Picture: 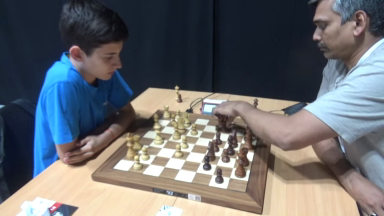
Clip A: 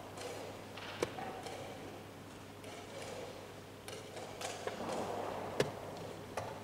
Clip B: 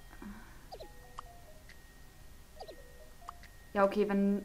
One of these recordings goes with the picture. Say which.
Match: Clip A